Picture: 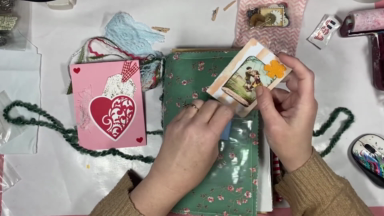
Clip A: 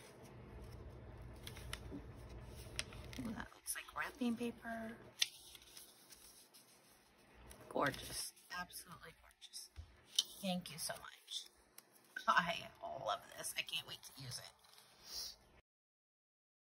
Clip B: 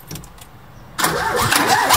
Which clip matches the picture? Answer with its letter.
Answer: A